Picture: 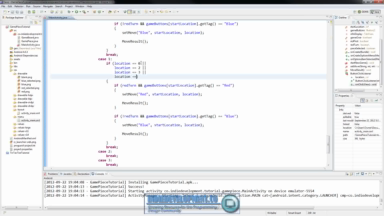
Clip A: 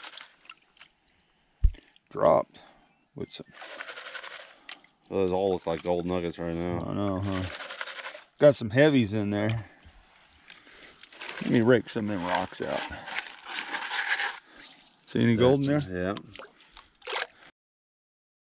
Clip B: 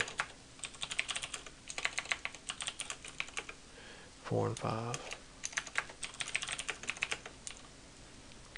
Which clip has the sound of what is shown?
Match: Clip B